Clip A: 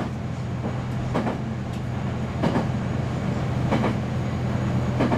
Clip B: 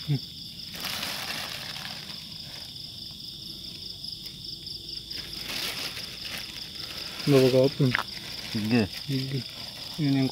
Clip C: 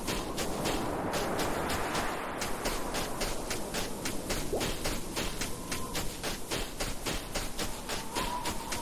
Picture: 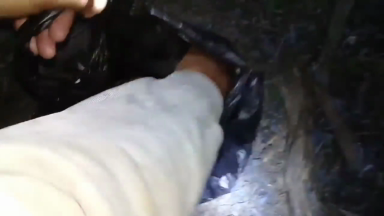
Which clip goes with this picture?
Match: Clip B